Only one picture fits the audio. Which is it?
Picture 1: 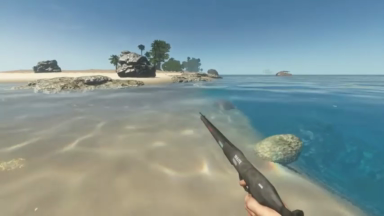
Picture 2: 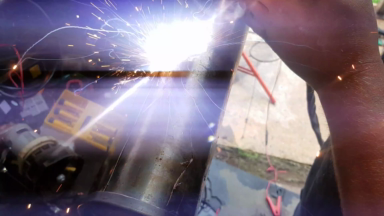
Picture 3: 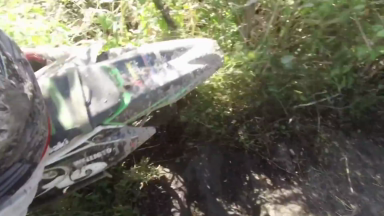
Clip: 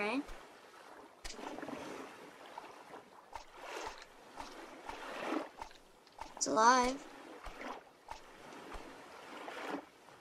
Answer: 1